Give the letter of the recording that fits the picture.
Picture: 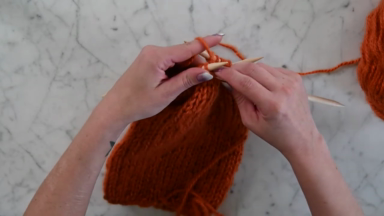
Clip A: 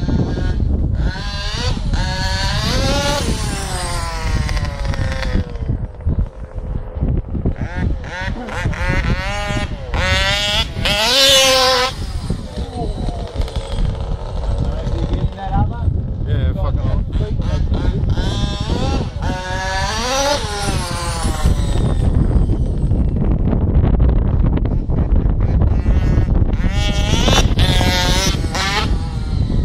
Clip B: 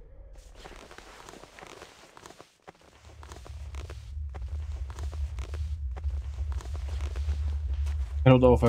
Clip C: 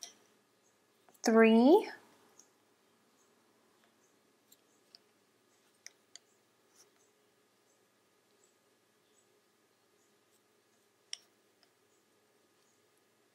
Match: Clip C